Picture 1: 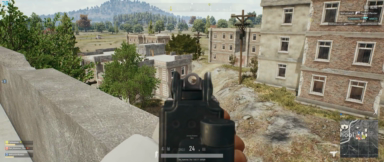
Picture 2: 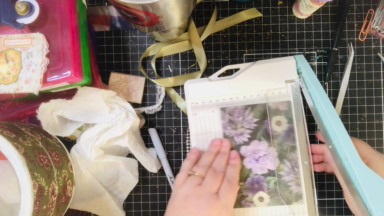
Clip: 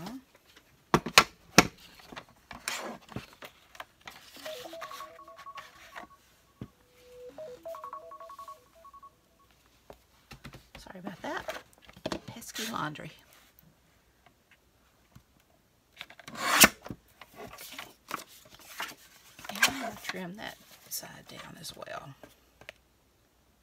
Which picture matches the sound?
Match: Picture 2